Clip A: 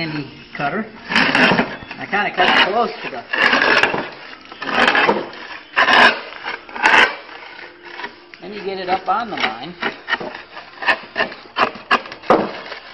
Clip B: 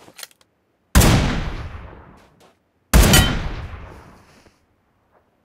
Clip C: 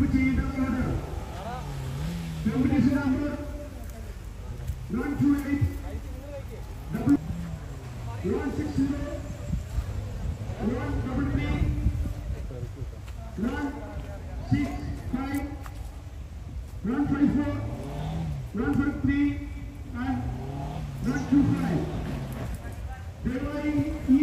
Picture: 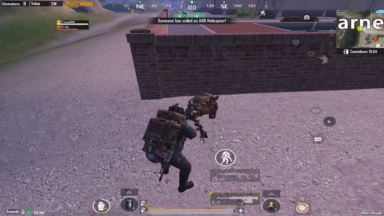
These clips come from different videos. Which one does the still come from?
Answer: B